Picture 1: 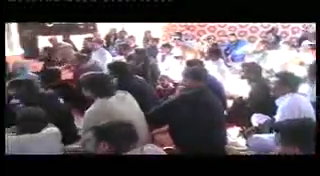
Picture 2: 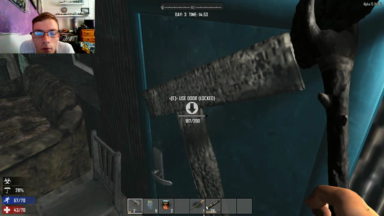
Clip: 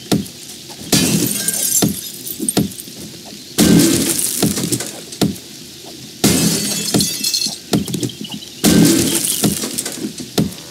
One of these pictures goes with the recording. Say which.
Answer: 2